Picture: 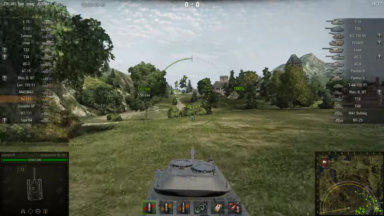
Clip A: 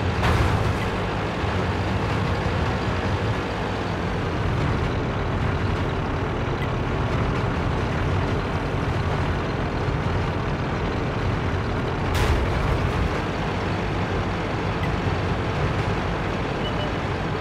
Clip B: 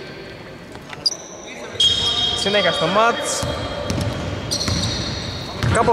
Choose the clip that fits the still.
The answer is A